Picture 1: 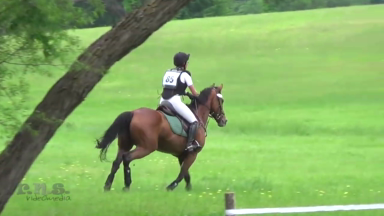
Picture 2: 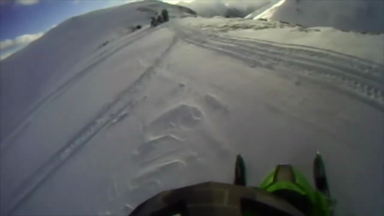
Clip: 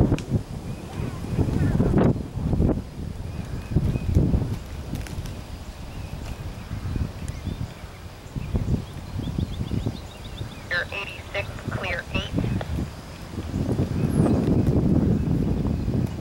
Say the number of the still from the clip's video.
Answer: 1